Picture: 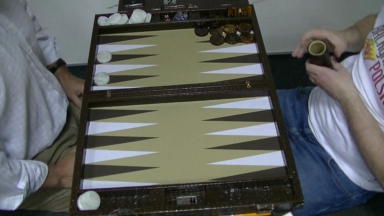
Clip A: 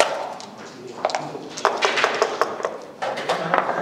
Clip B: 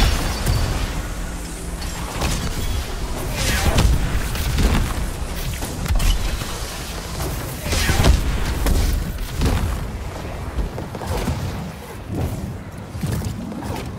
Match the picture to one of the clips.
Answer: A